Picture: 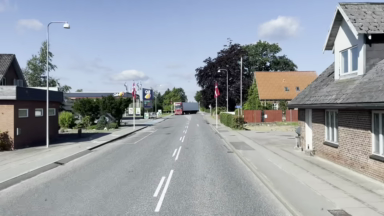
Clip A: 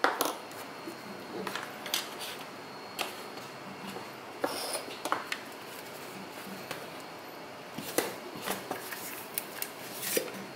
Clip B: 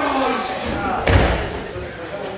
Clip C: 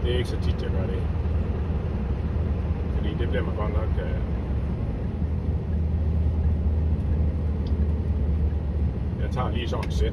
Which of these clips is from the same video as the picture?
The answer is C